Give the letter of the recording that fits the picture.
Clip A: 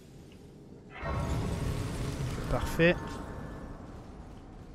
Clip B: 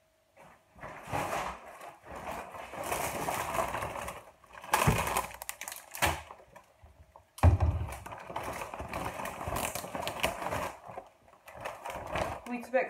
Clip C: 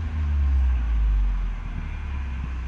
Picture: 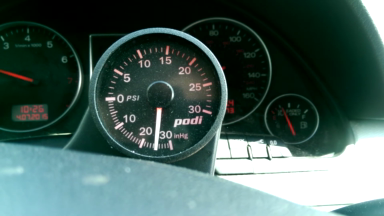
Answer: C